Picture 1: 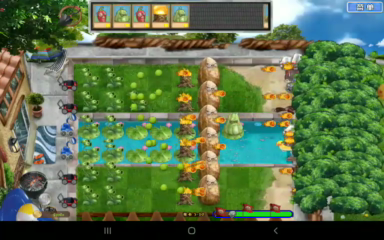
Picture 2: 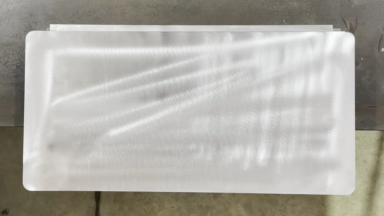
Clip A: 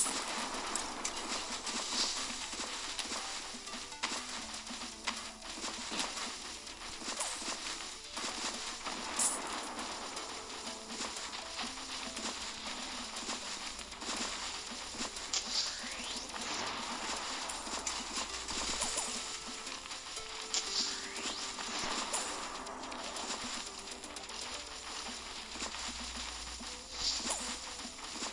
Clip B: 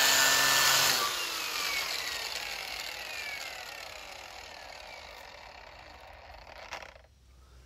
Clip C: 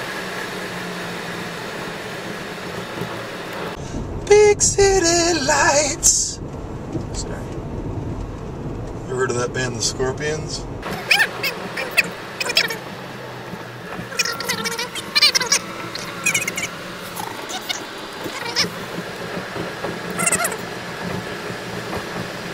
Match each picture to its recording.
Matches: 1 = A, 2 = B